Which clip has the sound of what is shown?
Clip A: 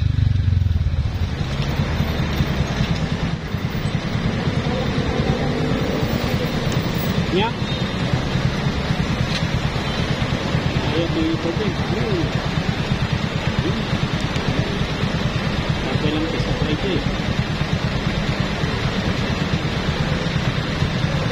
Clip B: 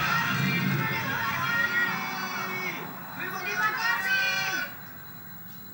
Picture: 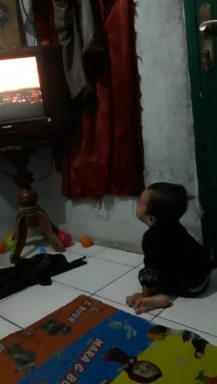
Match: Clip B